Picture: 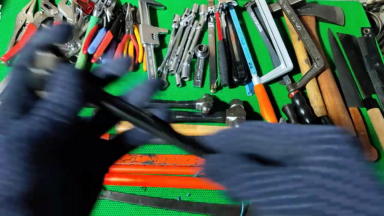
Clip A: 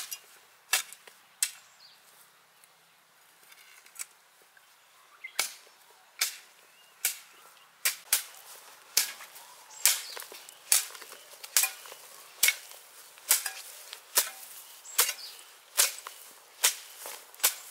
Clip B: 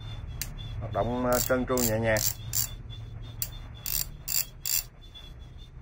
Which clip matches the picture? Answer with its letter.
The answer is B